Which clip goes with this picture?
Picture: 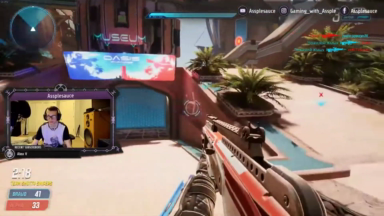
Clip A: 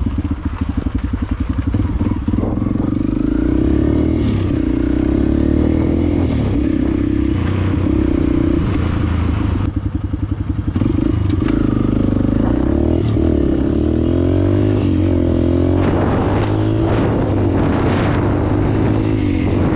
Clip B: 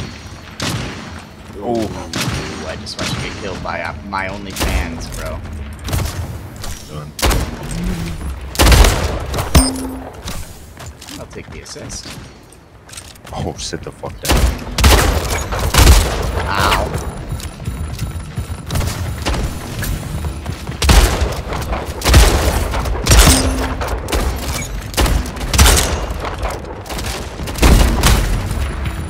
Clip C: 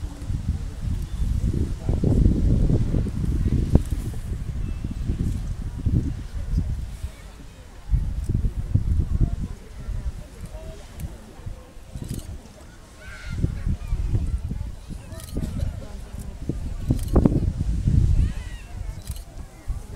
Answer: B